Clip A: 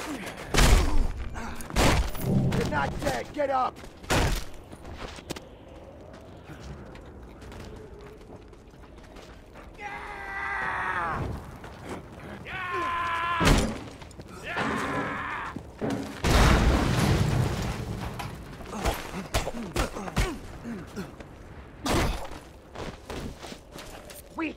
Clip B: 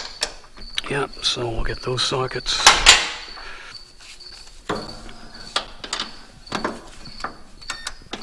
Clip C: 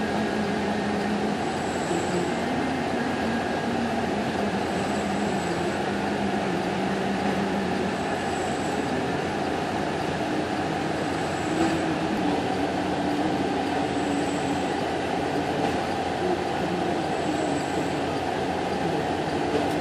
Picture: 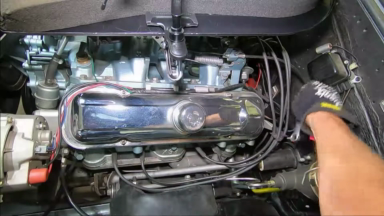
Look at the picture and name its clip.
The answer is B